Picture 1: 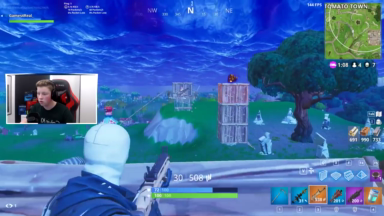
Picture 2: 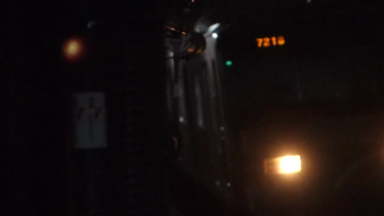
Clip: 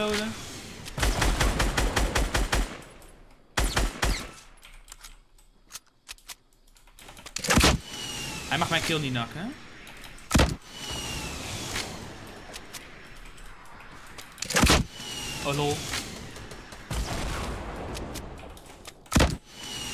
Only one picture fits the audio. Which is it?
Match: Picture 1